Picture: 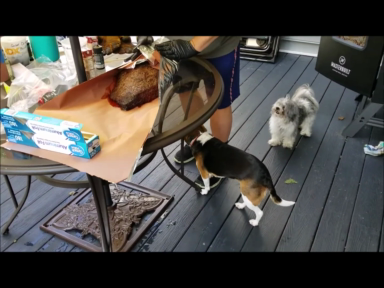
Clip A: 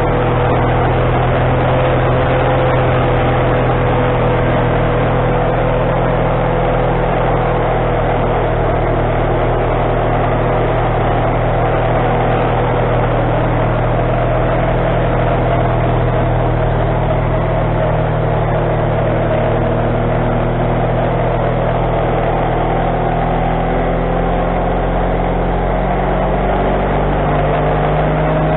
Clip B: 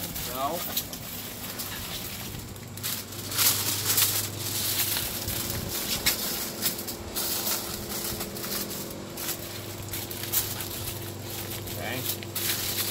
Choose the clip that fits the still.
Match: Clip B